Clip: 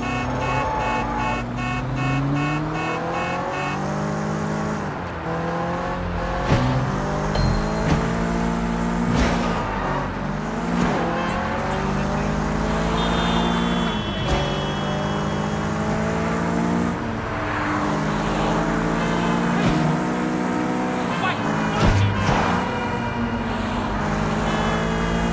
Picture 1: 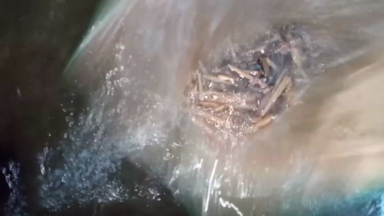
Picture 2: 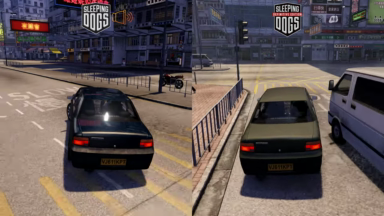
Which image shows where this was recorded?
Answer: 2